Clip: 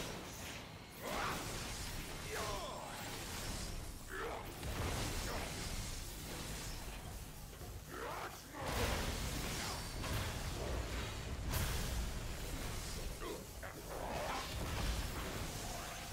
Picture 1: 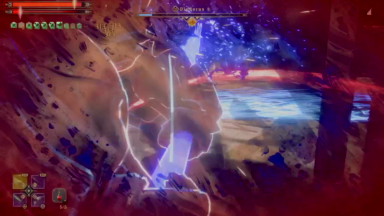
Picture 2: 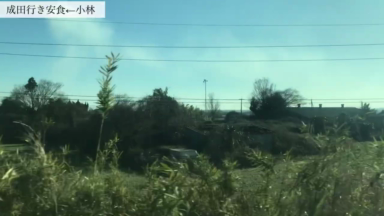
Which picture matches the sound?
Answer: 1